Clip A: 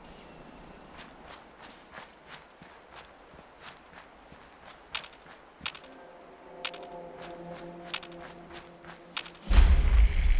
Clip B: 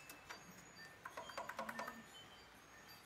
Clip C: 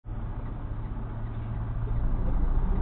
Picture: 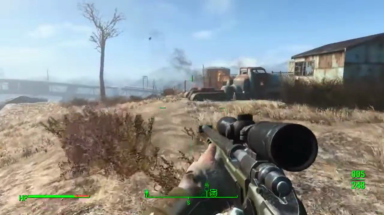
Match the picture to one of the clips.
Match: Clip A